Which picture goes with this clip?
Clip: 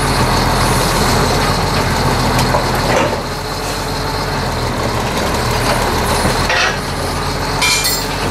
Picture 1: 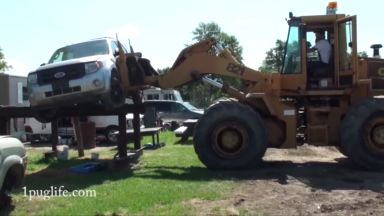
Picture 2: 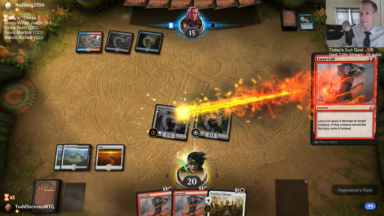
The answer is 1